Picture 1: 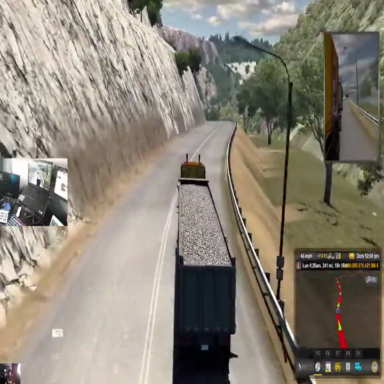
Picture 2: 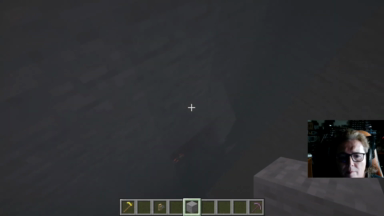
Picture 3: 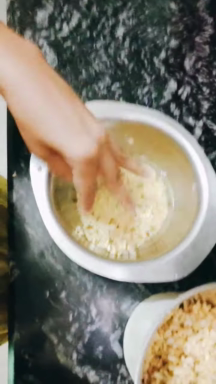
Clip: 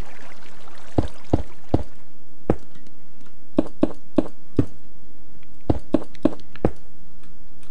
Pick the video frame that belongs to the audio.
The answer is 2